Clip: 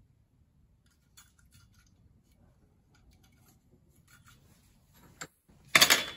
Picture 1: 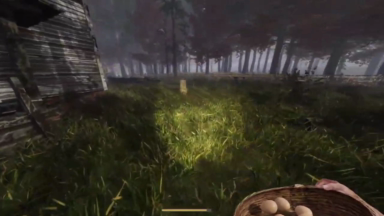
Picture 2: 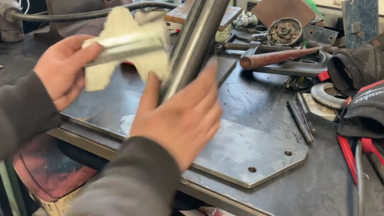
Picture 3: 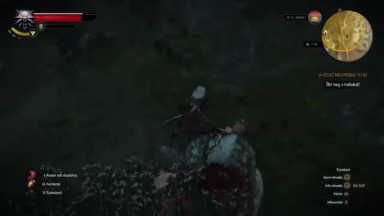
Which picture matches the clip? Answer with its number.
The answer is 2